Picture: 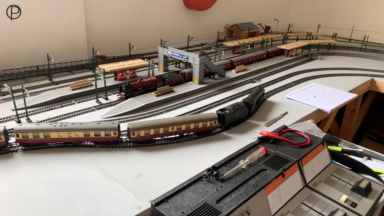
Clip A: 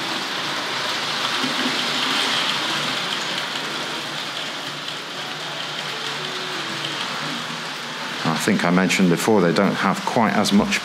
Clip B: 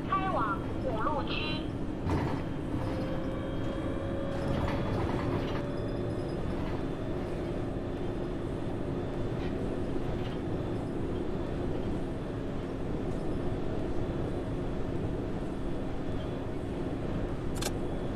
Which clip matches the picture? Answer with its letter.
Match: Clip A